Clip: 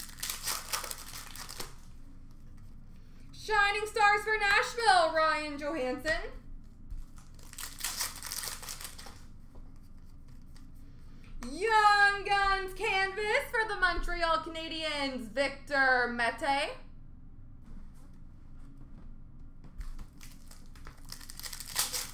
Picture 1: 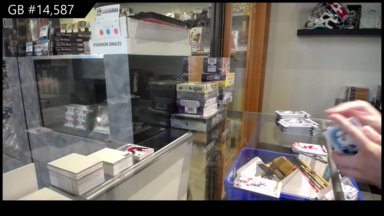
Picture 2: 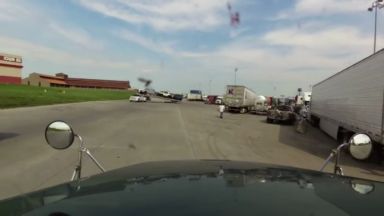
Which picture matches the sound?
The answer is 1